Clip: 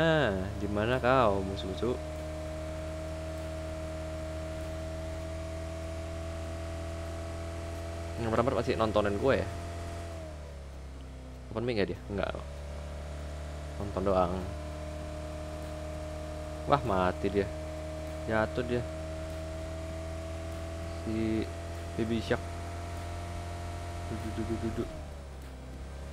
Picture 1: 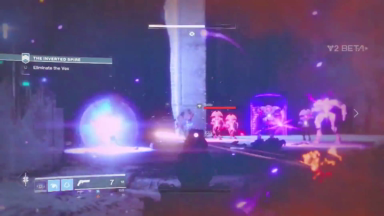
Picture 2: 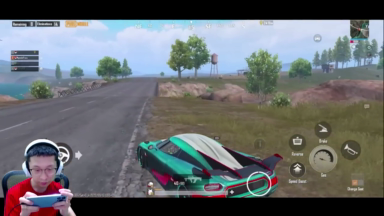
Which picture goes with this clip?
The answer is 2